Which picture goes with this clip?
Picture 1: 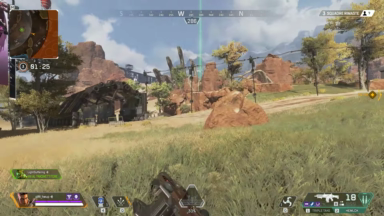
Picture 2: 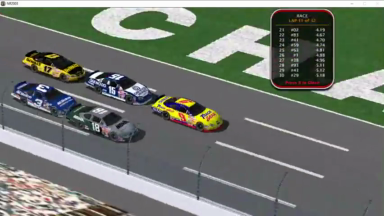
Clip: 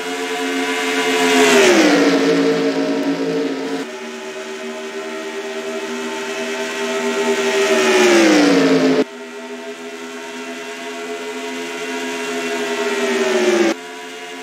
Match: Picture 2